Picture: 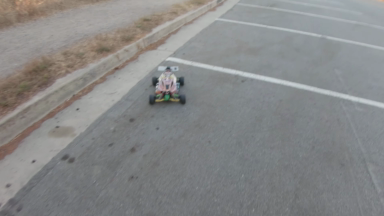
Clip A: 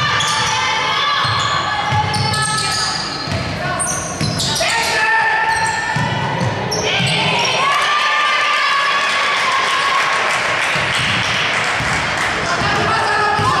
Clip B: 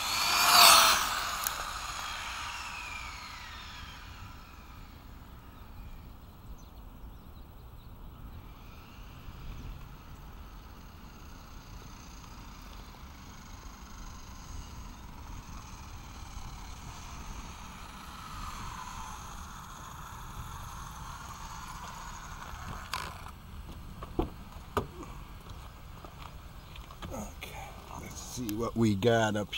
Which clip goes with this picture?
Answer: B